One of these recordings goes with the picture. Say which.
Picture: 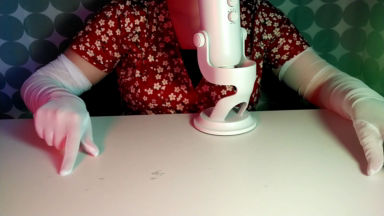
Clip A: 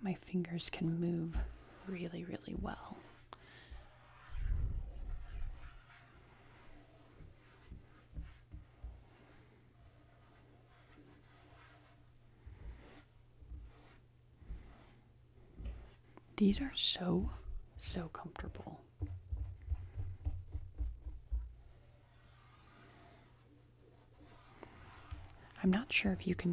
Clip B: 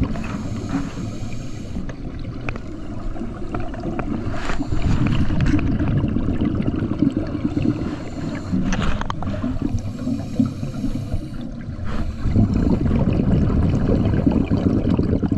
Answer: A